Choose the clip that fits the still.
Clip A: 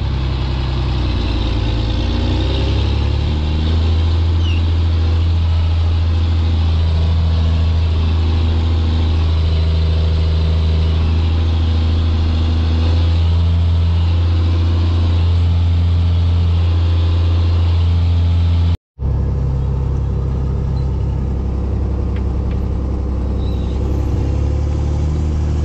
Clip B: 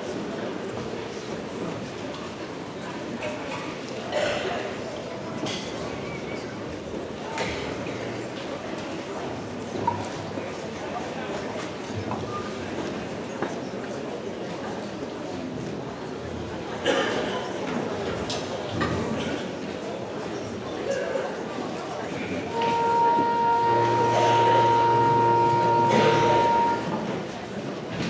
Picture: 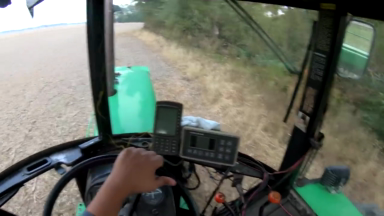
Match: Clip A